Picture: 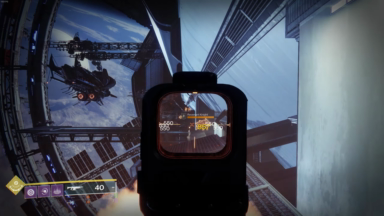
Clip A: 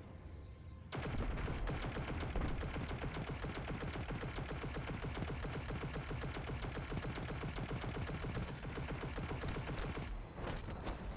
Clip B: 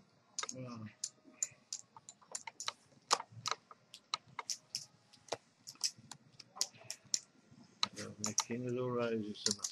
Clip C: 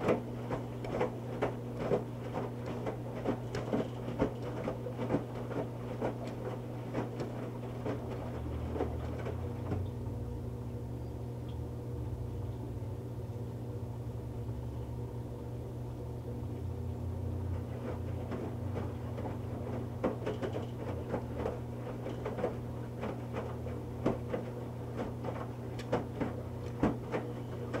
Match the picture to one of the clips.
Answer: A